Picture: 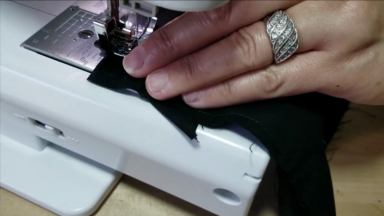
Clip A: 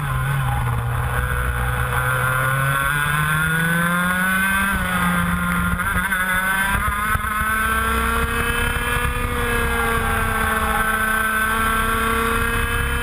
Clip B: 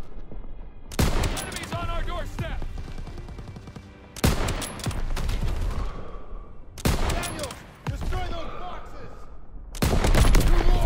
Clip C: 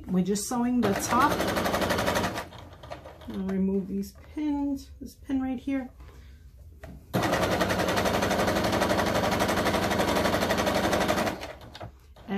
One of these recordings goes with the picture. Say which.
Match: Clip C